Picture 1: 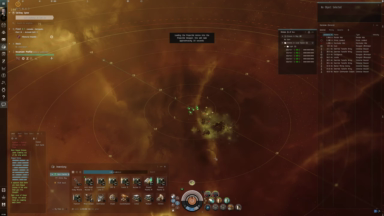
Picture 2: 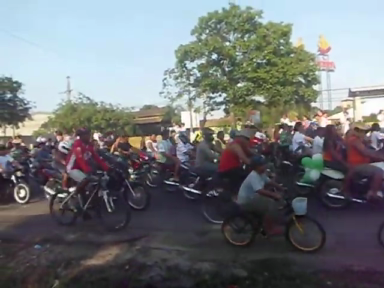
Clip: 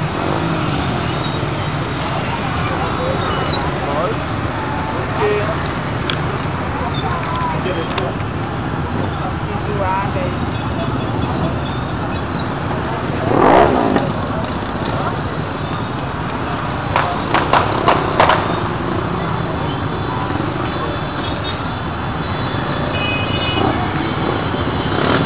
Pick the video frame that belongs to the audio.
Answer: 2